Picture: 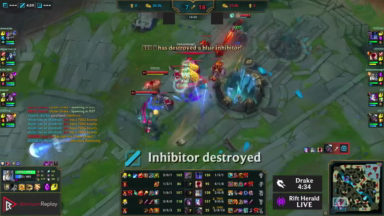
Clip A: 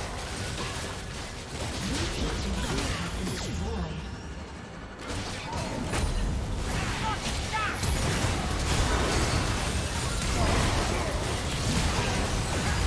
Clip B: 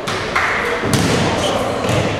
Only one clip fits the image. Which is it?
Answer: A